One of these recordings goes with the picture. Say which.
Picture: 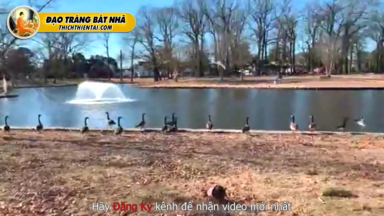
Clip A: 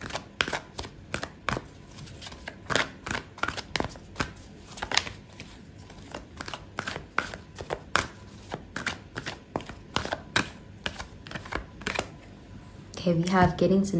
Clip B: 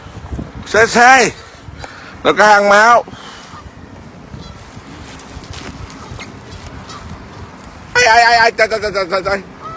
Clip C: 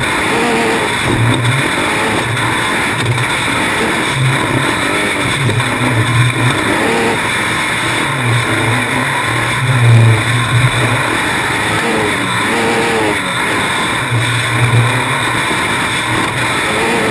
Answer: B